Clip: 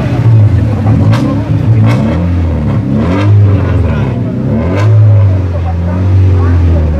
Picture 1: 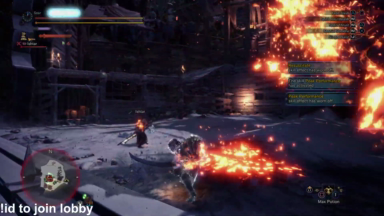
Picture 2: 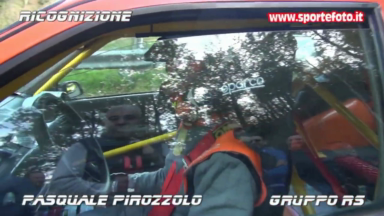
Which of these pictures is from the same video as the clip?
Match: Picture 2